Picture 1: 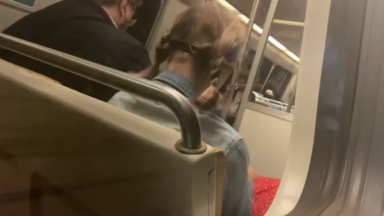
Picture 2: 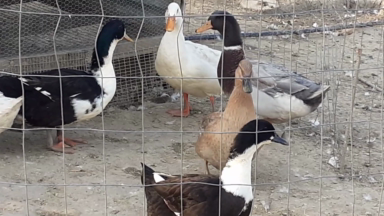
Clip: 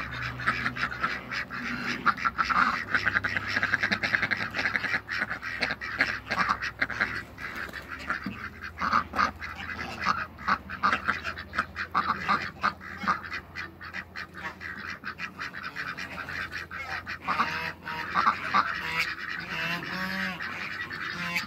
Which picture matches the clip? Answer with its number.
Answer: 2